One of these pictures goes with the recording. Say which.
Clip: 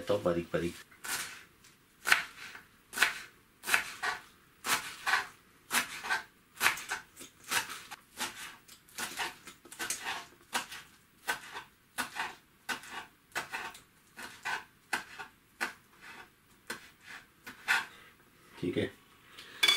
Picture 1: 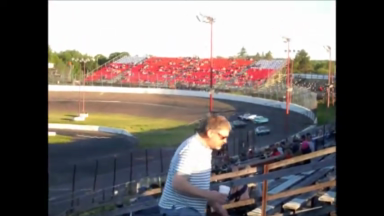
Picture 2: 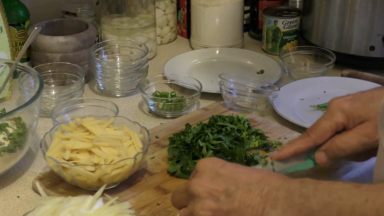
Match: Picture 2